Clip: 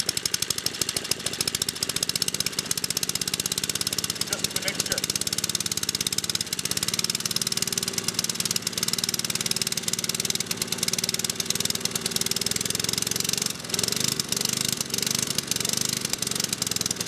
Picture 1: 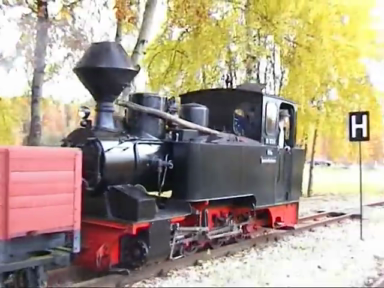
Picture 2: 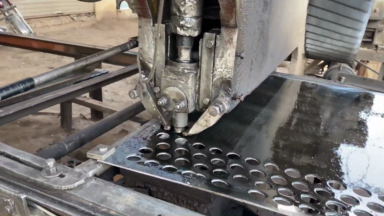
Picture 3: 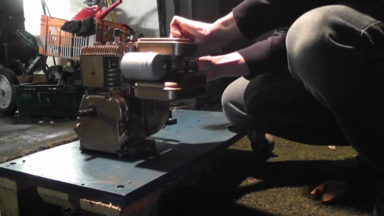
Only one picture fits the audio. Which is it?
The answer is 3